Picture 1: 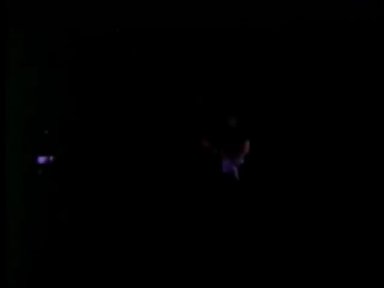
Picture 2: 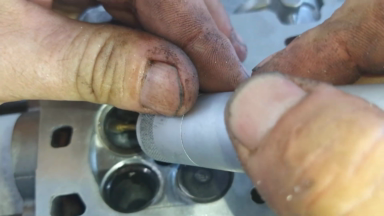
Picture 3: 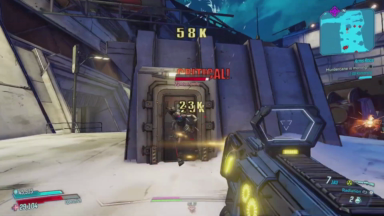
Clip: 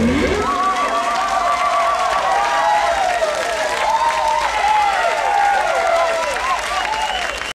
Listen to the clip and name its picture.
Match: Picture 1